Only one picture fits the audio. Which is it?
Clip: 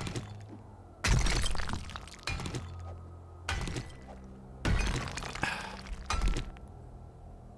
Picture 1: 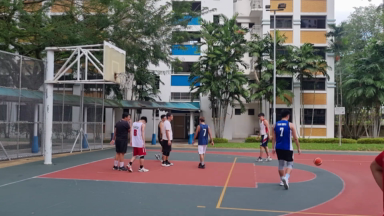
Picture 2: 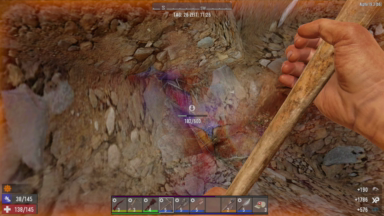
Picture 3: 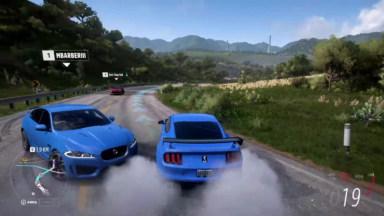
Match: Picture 2